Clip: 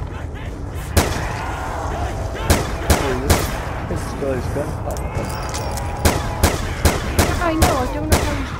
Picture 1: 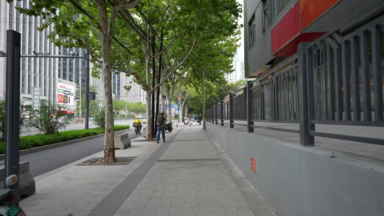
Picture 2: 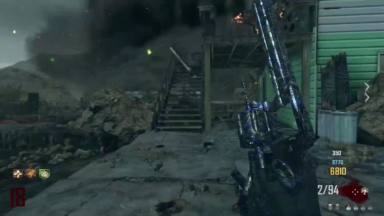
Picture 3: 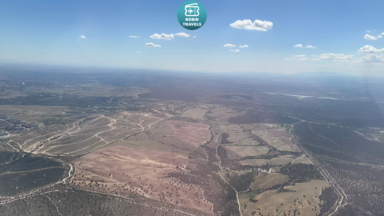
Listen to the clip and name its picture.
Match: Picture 2